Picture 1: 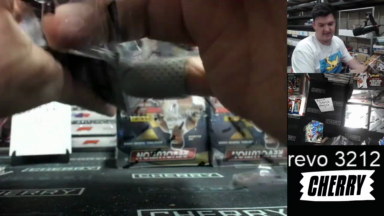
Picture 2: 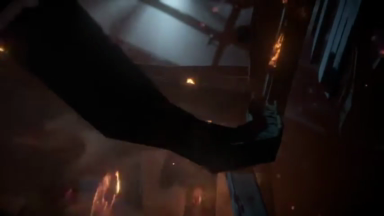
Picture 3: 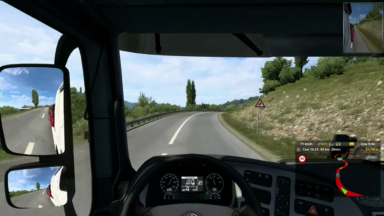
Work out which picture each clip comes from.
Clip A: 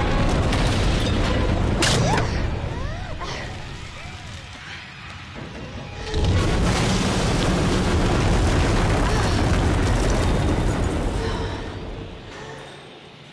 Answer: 2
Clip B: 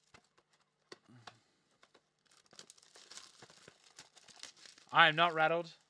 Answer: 1